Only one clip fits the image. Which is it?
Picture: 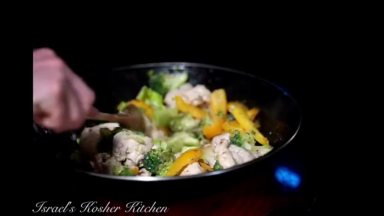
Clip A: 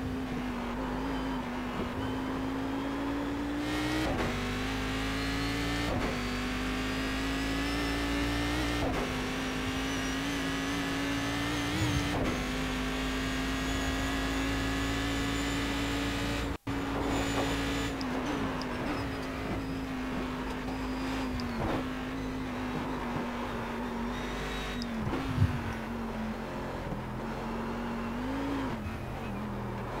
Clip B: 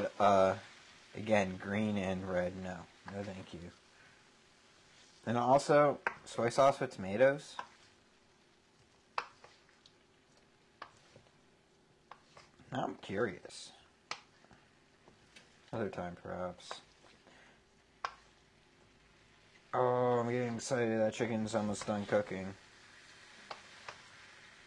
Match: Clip B